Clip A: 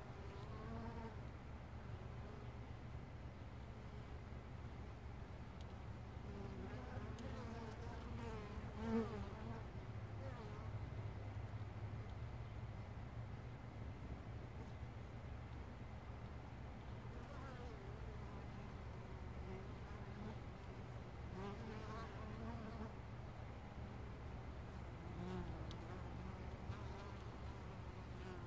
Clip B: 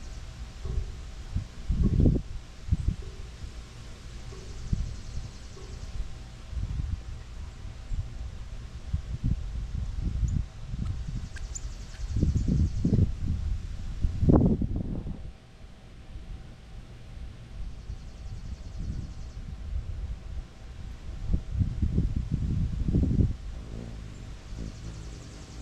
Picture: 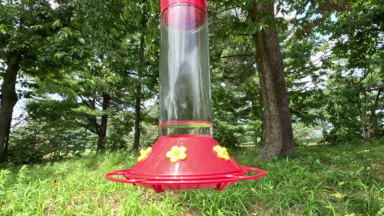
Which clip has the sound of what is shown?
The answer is B